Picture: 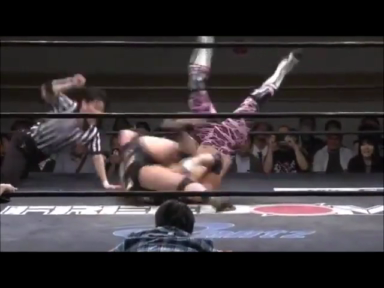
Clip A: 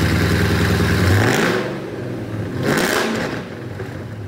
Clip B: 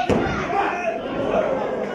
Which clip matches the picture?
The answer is B